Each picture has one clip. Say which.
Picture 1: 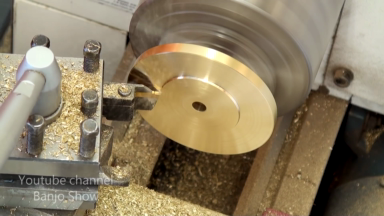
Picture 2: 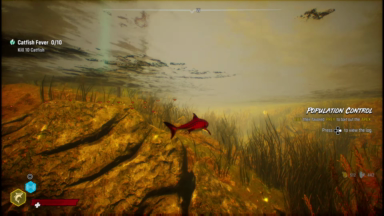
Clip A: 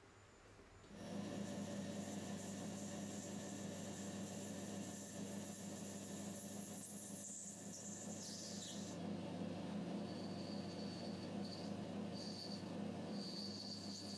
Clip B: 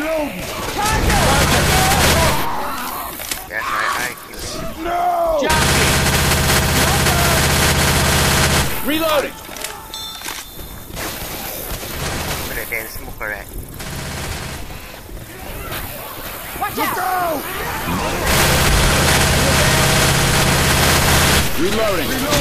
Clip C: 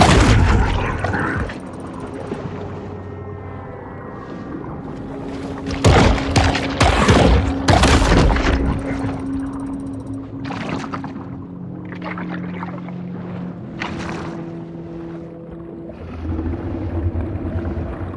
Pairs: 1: A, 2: C